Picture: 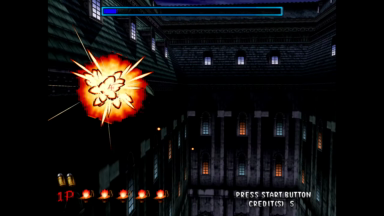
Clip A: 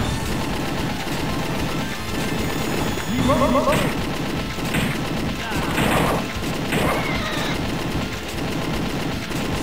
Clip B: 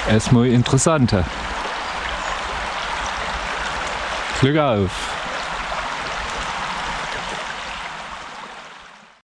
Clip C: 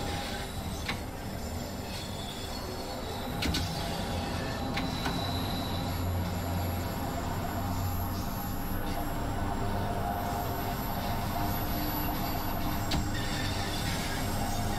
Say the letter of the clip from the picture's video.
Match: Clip A